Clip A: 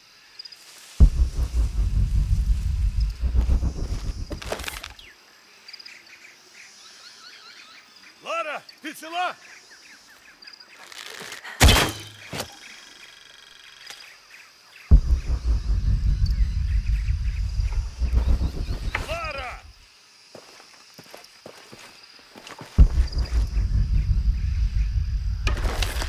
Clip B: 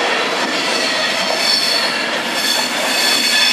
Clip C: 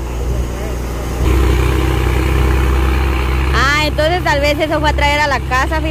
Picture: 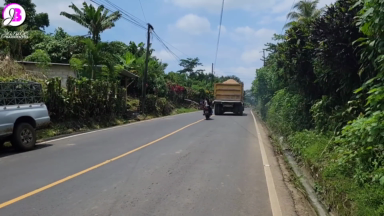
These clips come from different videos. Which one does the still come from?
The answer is C